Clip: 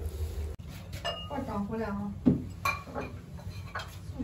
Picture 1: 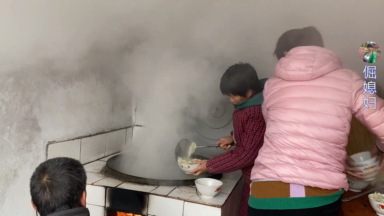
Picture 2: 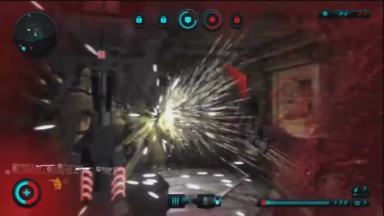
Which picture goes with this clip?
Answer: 1